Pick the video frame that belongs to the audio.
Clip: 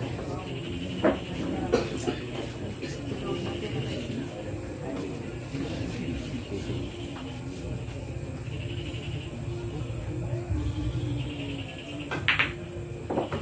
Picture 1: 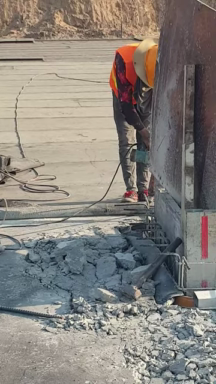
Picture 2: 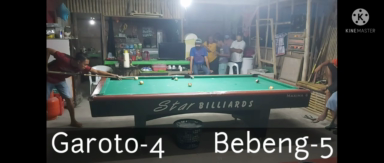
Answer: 2